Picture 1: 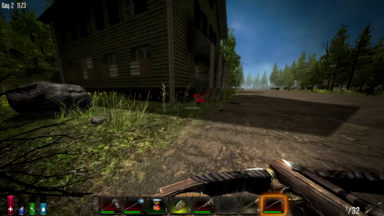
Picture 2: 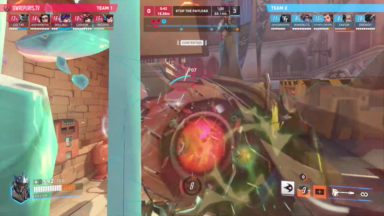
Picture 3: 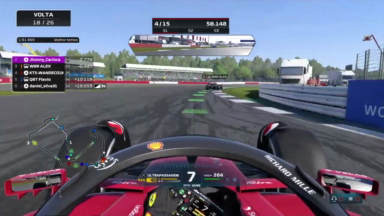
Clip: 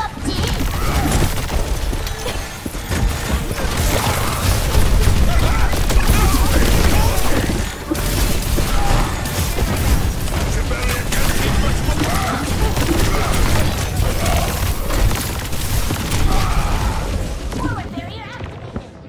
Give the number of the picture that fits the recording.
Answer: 2